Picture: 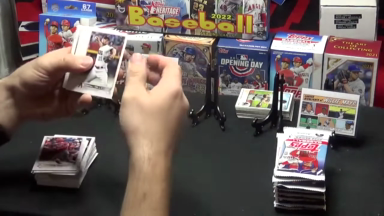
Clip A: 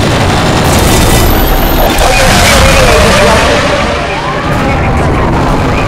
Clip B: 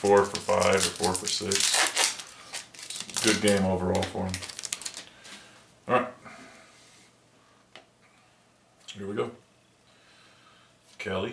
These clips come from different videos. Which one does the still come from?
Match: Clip B